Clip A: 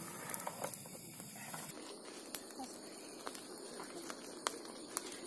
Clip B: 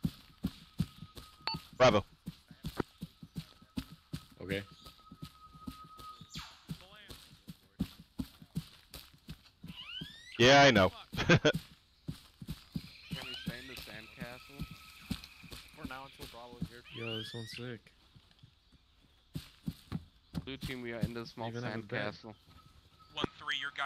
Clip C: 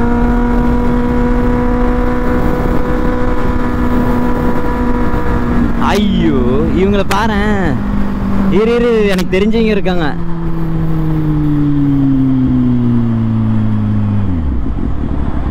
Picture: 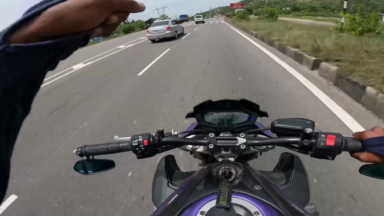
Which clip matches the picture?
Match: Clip C